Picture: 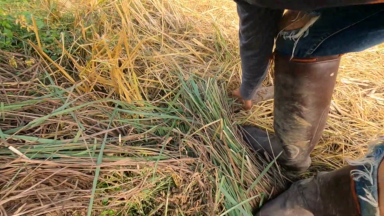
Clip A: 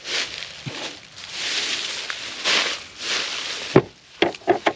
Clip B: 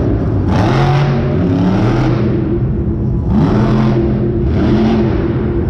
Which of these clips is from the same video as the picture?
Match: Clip A